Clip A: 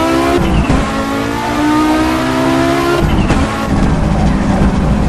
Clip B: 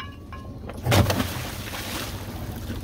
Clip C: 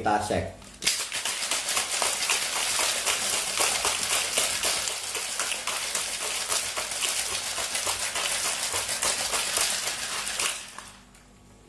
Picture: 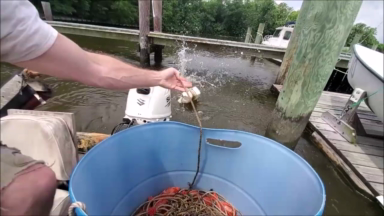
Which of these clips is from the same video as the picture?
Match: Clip B